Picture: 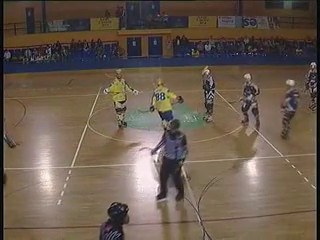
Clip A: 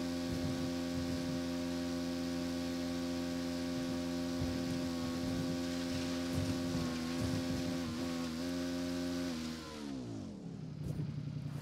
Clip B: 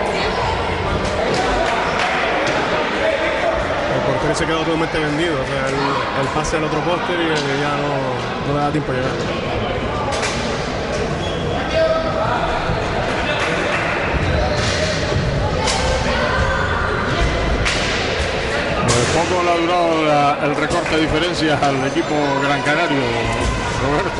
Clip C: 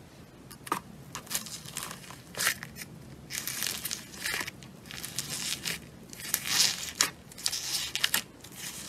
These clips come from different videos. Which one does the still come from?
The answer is B